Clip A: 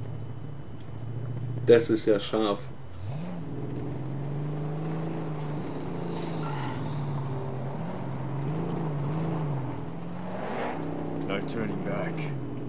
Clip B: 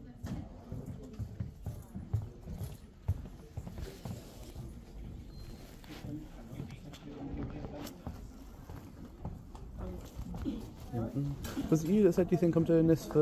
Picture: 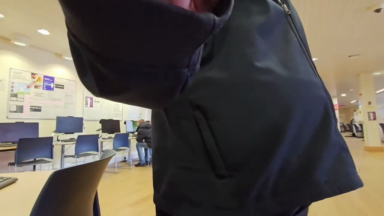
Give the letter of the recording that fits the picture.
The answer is B